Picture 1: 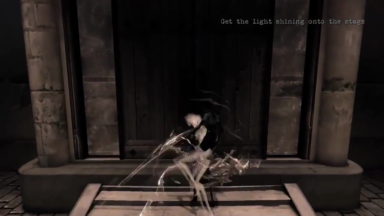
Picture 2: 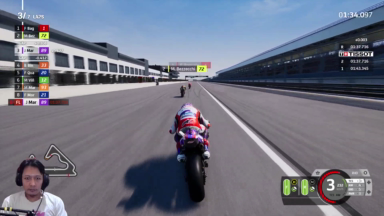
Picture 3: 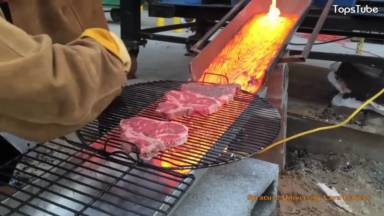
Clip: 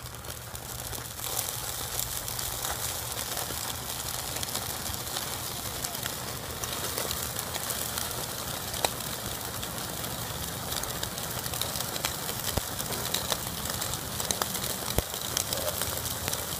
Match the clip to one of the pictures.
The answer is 3